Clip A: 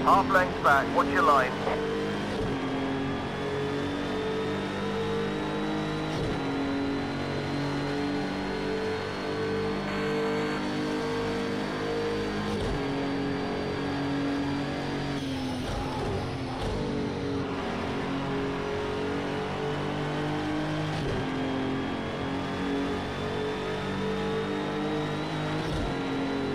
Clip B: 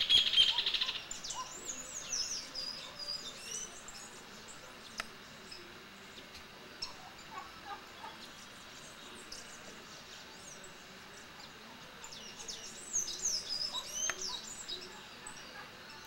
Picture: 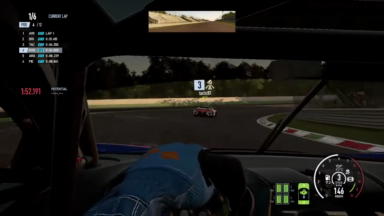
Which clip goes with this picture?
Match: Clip A